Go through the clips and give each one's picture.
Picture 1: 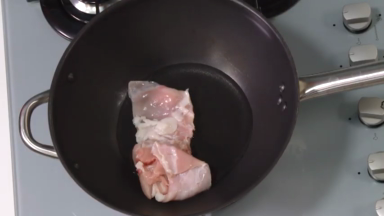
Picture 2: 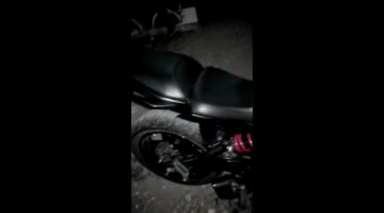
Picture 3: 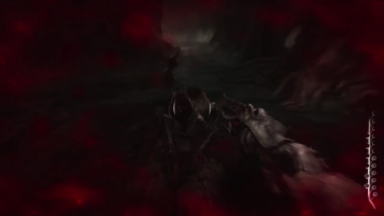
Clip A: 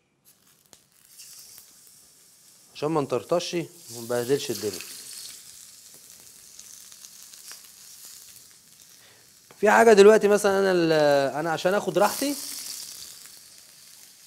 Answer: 1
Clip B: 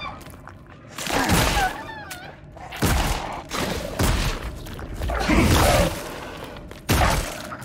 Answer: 3